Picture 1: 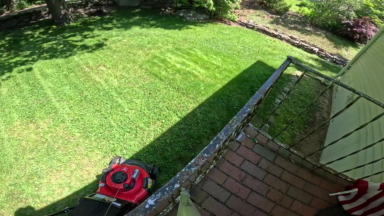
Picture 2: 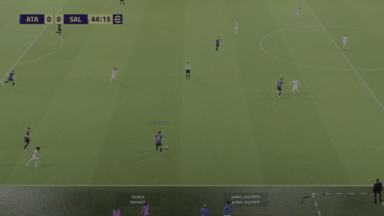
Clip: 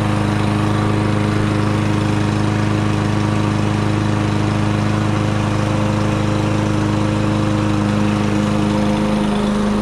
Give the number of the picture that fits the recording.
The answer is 1